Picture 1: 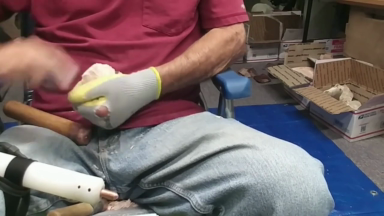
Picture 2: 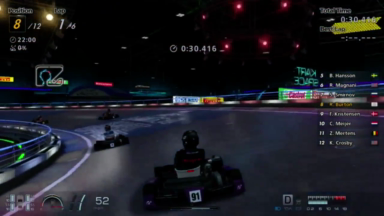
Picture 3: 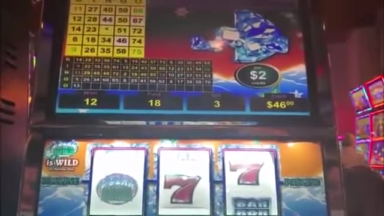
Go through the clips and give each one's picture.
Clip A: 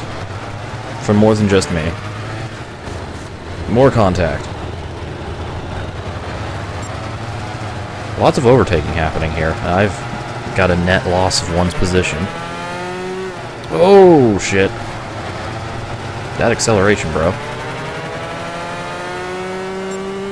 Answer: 2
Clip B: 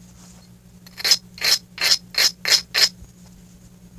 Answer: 1